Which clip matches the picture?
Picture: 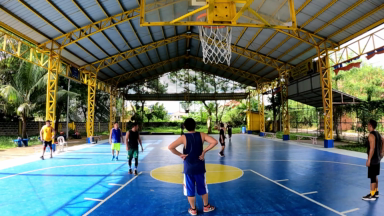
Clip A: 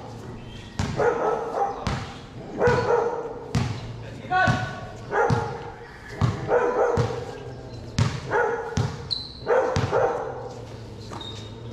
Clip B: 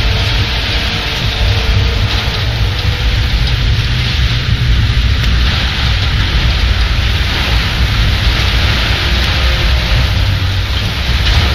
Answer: A